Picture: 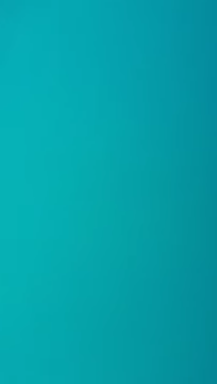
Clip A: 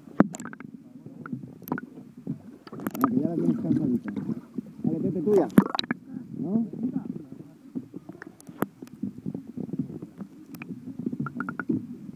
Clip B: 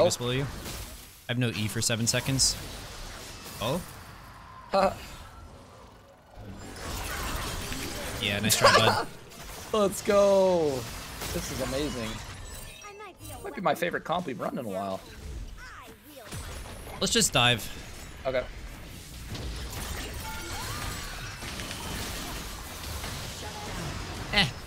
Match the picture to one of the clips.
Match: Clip A